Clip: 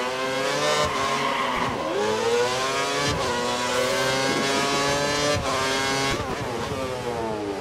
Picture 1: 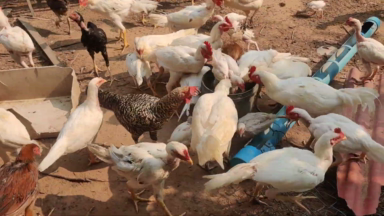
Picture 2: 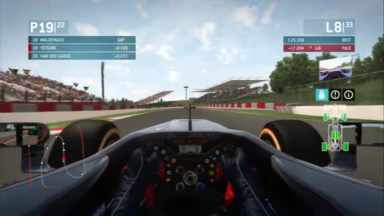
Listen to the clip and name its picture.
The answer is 2